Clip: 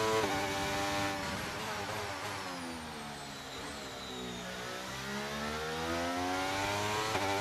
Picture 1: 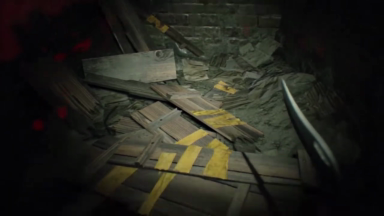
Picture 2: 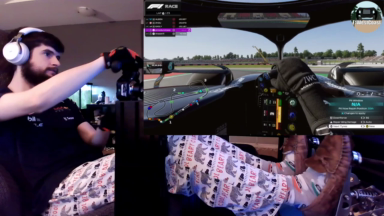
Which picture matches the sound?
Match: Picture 2